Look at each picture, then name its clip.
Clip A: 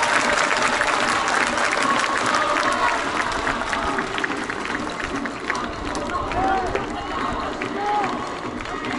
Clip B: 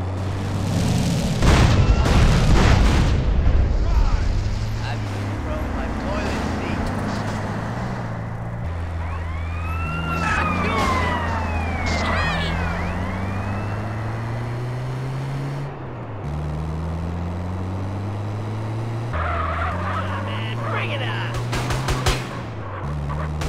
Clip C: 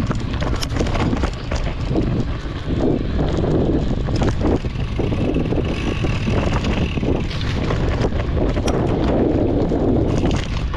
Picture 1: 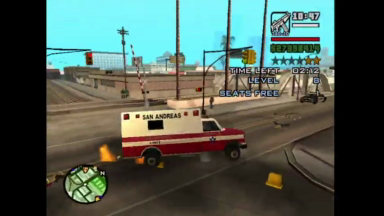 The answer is B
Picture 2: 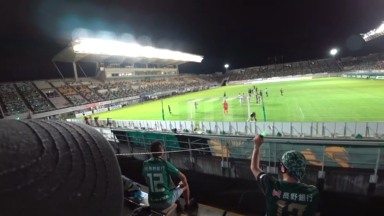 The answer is A